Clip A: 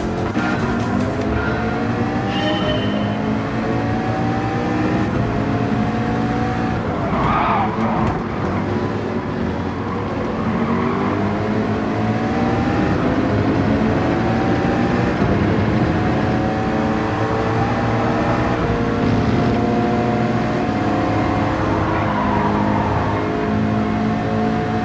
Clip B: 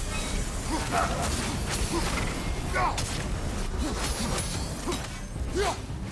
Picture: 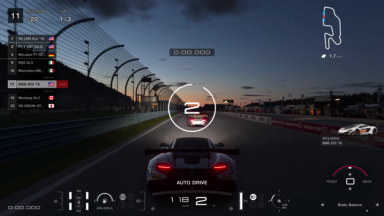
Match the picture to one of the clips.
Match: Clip A